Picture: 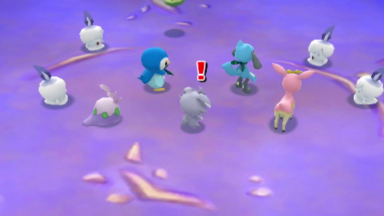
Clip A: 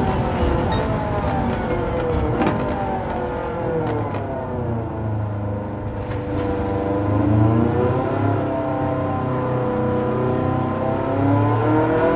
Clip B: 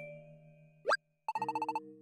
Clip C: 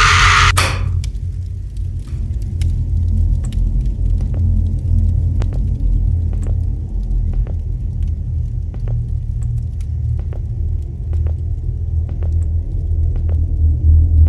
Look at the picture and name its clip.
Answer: B